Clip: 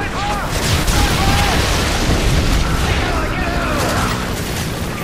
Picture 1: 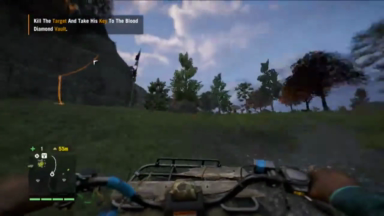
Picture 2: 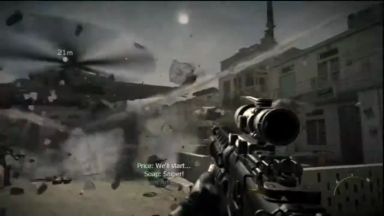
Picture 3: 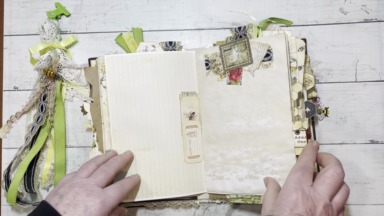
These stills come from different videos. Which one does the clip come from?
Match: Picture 2